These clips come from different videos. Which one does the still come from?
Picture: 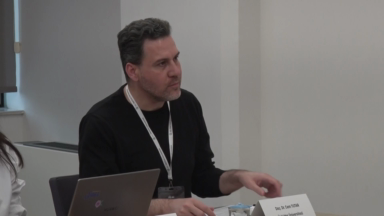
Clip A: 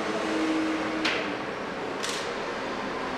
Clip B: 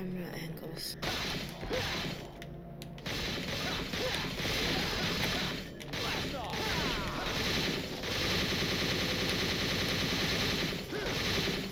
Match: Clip A